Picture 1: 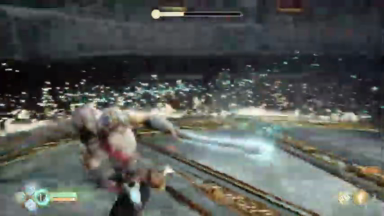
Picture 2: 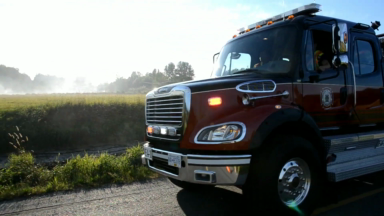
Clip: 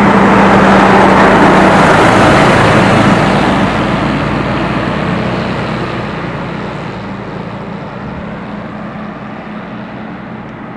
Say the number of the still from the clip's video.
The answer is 2